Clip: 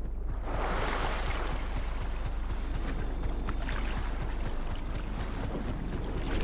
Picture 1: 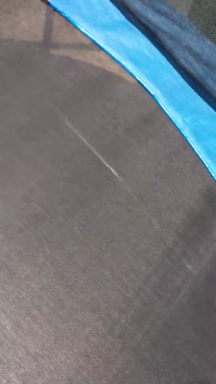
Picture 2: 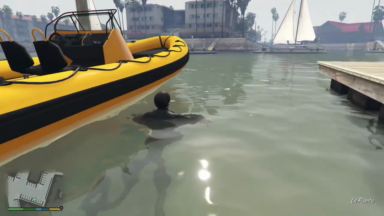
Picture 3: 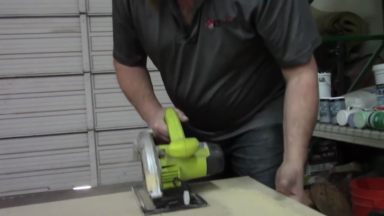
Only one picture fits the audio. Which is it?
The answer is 2